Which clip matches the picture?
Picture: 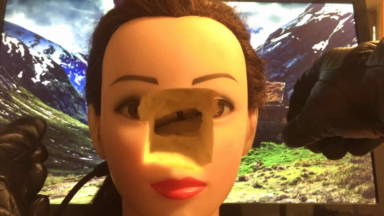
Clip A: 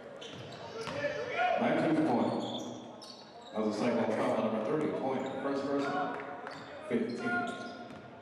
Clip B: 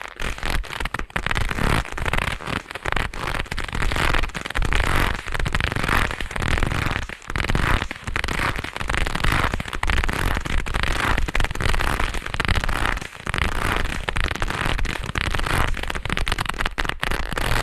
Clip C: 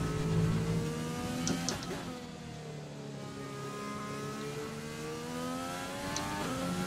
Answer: B